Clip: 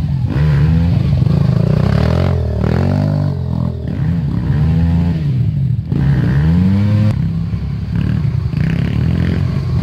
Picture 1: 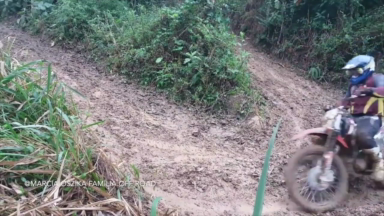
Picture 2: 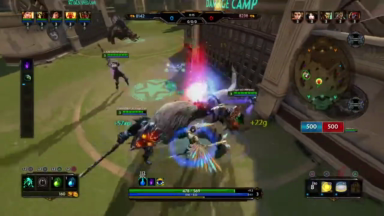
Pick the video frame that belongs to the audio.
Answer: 1